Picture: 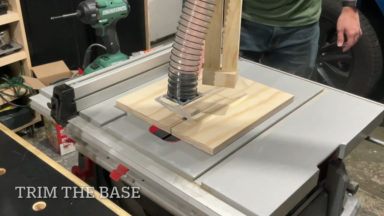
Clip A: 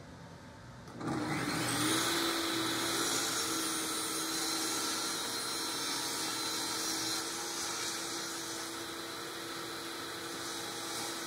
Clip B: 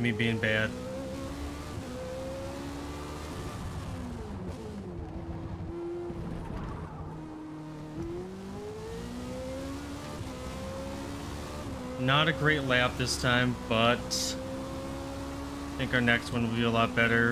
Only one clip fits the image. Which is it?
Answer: A